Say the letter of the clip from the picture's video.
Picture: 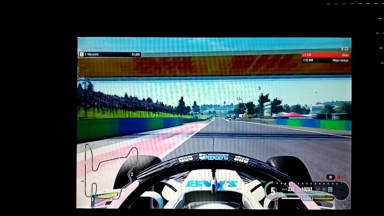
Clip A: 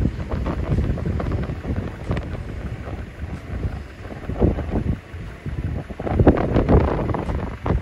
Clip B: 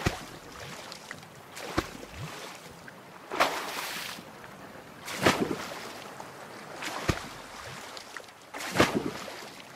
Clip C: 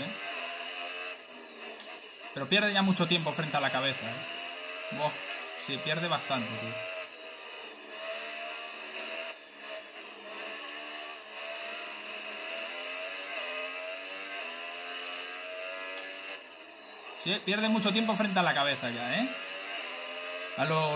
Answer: C